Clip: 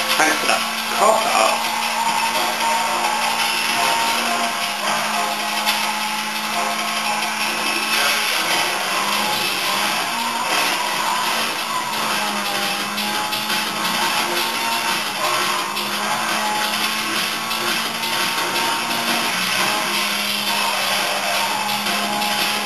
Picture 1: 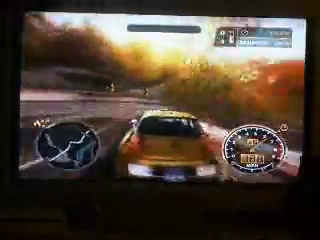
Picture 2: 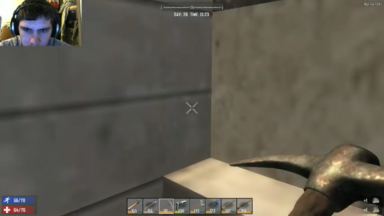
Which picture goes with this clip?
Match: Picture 1